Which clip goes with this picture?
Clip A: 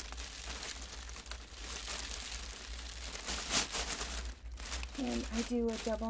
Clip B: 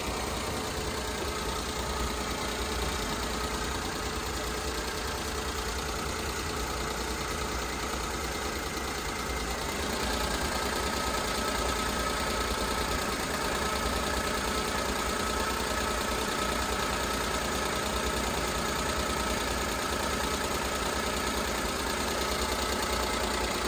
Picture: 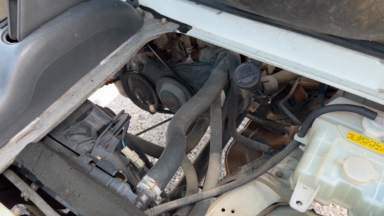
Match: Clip B